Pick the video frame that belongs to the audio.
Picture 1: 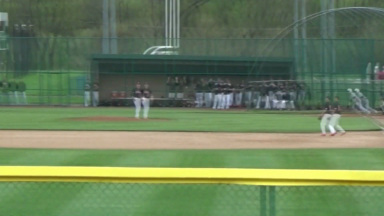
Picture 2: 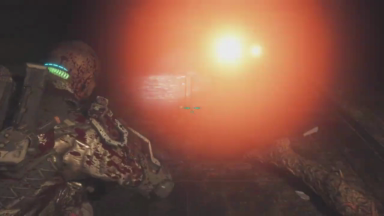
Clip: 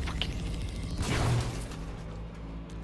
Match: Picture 2